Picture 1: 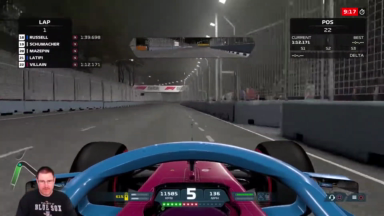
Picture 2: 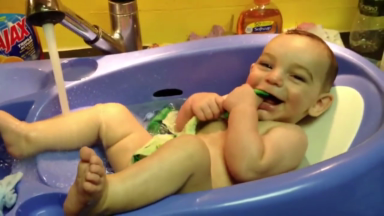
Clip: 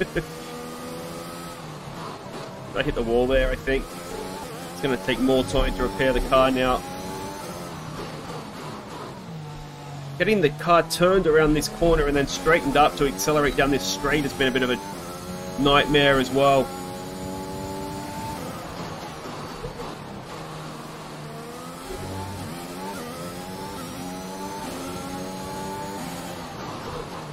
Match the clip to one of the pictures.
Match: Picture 1